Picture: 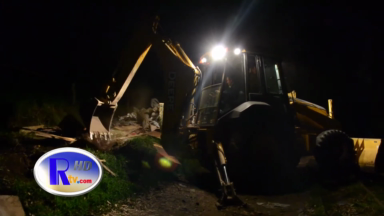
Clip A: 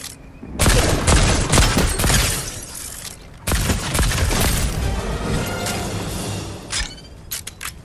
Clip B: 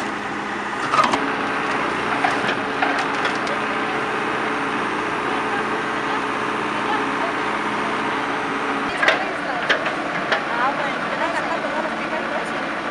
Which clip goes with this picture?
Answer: B